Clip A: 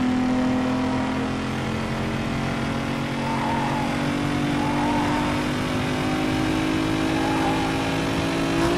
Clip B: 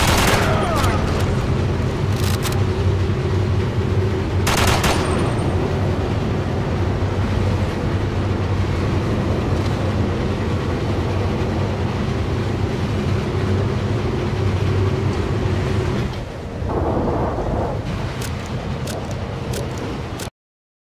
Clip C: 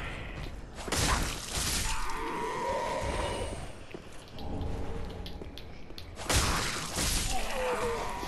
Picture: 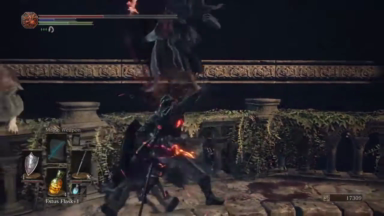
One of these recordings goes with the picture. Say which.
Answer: C